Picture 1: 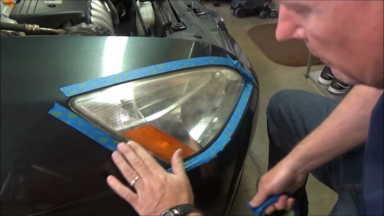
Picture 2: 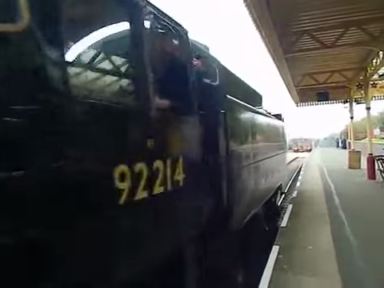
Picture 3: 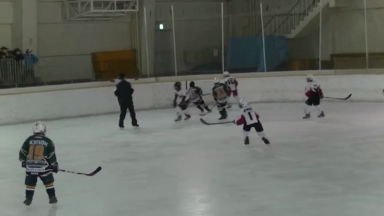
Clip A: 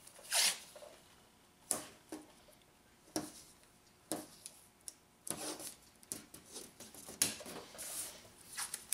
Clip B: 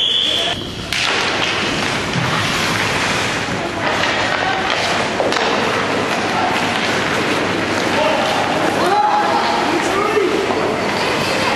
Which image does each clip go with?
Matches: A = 1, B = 3